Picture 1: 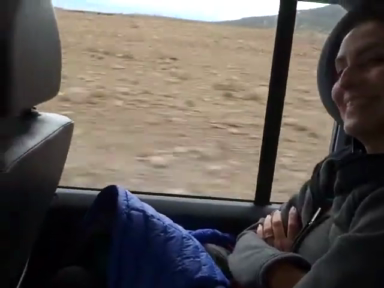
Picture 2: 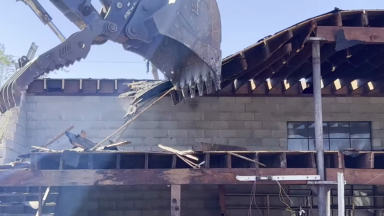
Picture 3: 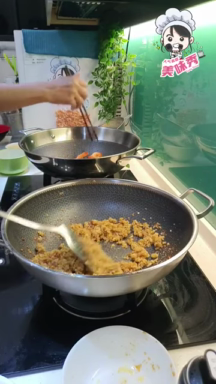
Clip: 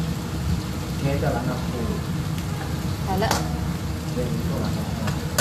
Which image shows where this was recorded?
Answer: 3